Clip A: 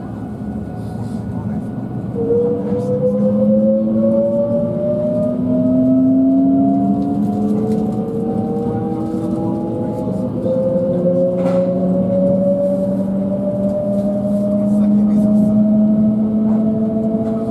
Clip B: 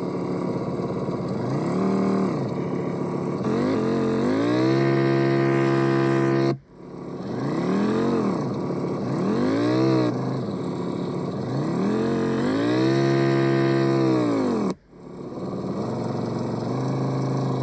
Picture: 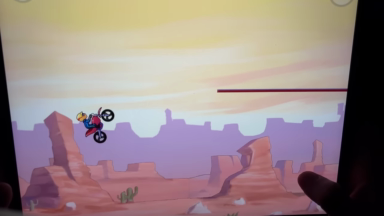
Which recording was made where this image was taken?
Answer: B